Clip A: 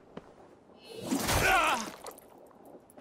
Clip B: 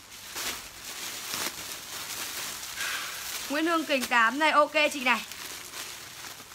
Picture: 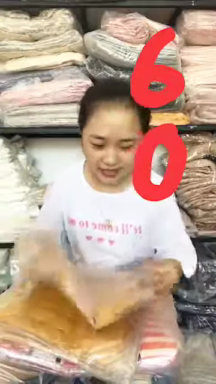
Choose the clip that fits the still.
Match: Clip B